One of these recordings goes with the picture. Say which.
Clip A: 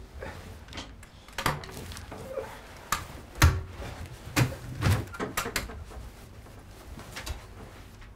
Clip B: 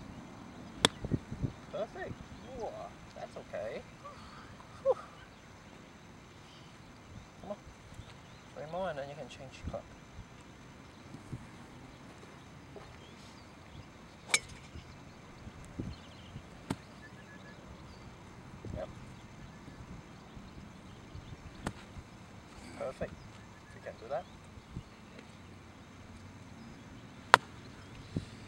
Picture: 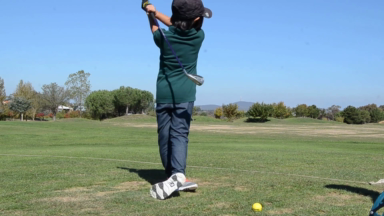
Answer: B